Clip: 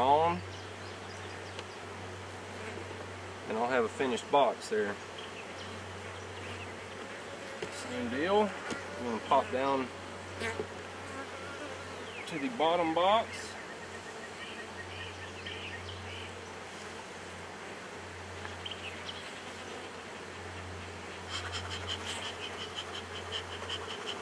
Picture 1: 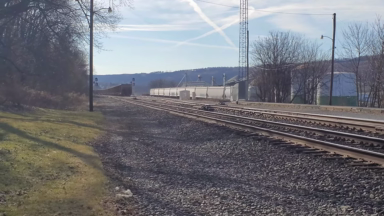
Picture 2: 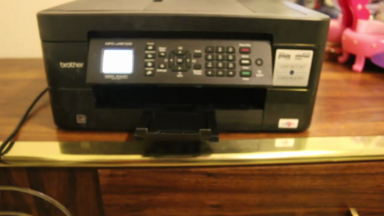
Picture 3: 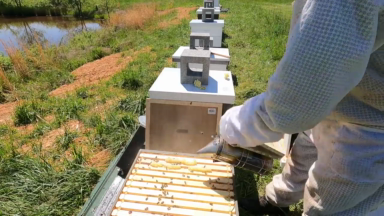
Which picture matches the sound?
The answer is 3